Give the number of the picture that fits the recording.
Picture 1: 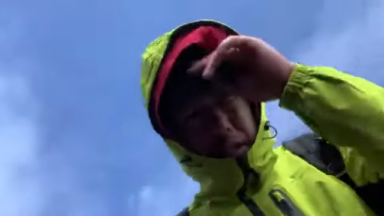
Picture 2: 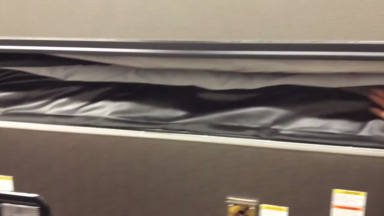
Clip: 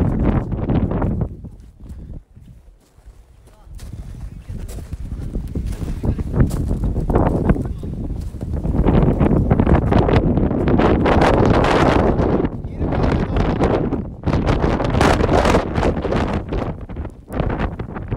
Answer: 1